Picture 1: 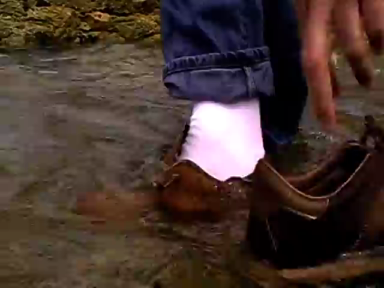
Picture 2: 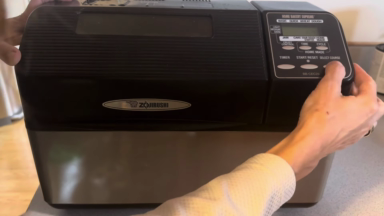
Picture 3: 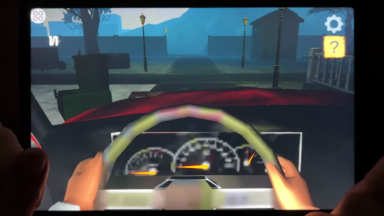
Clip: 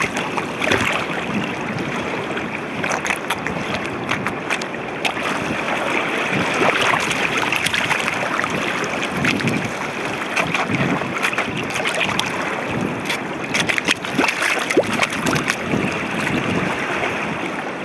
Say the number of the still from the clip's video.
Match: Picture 1